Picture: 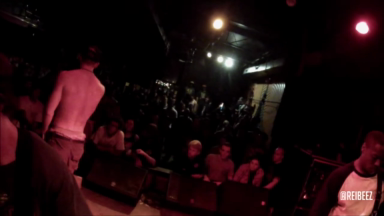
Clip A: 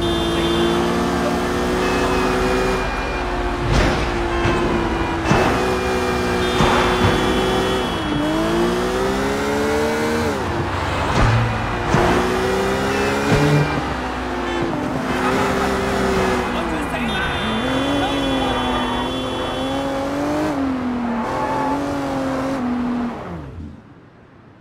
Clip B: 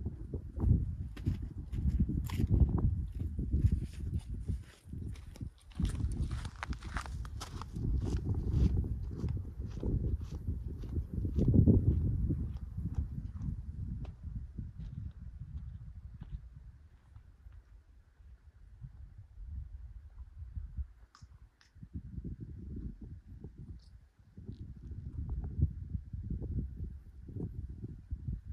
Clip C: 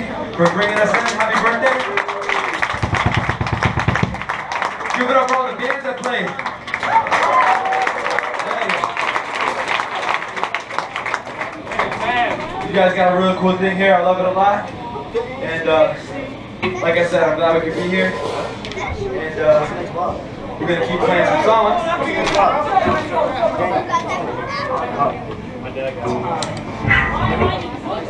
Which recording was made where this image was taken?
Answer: C